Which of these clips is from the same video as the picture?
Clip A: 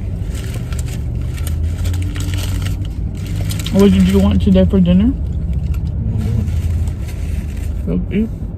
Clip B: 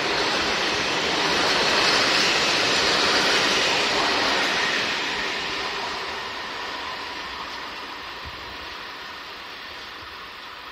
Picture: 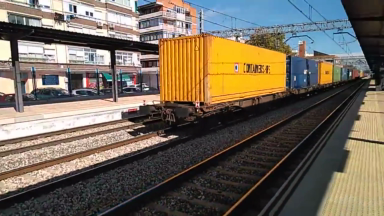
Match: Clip B